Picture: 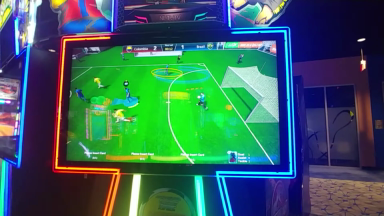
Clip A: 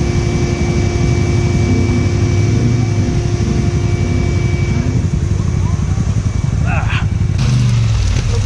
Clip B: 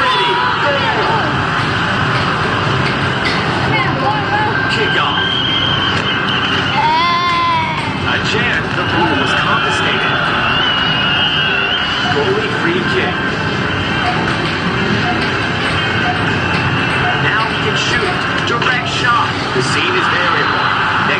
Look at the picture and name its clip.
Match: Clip B